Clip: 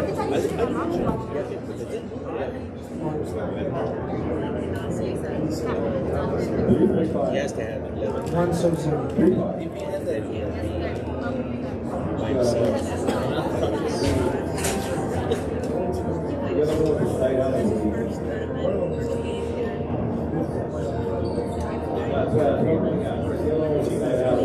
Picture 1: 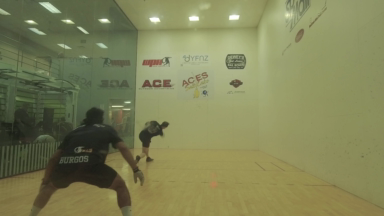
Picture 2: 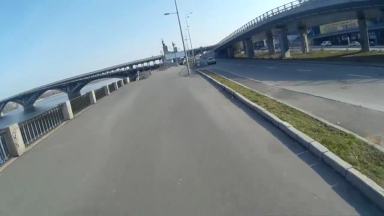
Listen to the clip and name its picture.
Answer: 1